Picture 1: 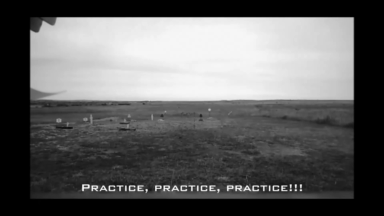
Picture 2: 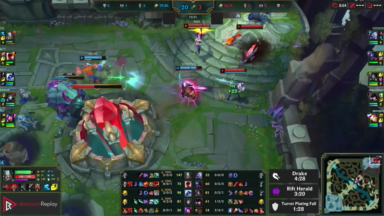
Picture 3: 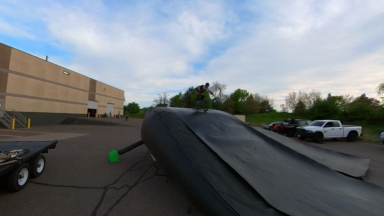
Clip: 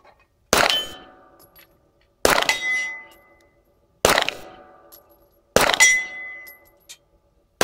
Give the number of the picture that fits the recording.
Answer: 1